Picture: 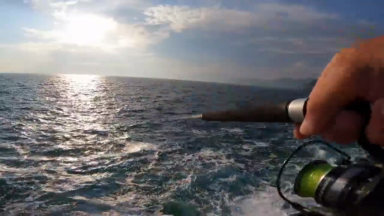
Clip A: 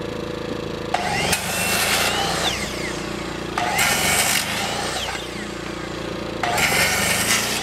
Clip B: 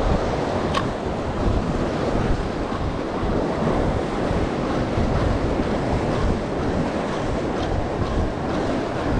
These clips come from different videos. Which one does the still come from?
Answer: B